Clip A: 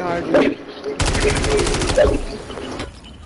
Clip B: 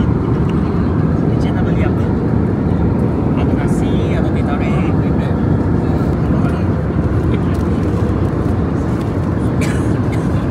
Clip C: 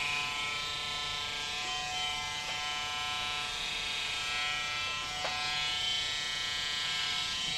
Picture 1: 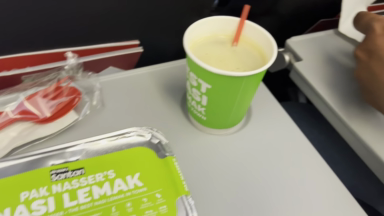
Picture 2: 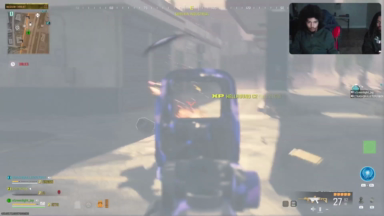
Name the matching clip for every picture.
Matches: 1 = B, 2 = A